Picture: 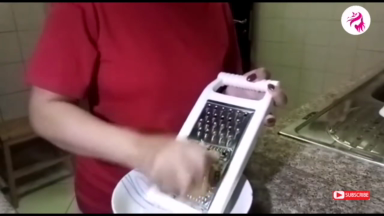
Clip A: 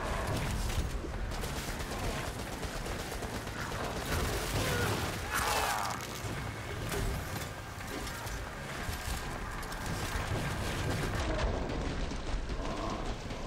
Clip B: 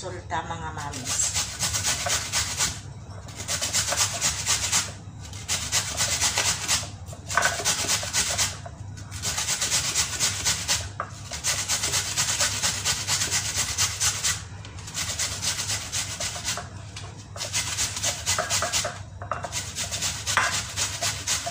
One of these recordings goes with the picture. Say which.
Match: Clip B